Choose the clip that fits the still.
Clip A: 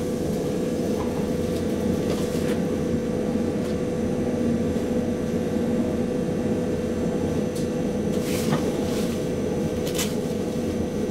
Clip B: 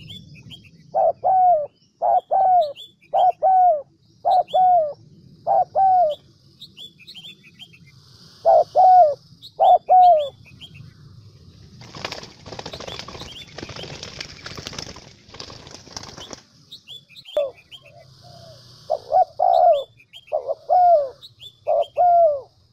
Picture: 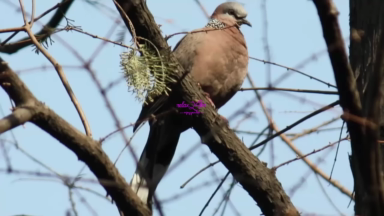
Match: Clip B